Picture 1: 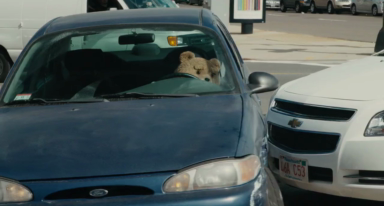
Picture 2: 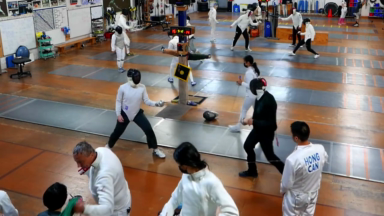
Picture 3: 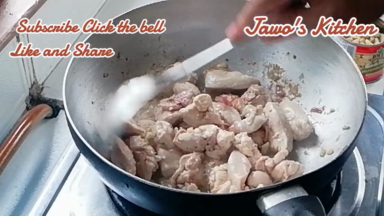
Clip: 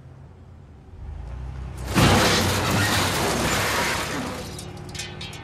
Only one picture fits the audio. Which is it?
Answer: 1